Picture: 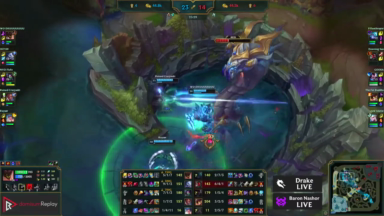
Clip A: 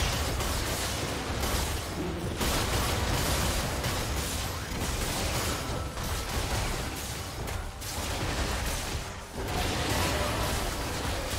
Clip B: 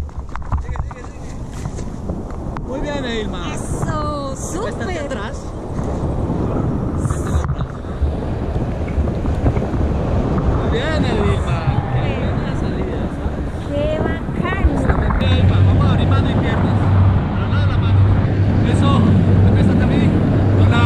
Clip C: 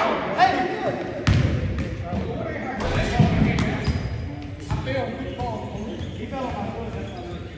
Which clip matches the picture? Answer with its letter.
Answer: A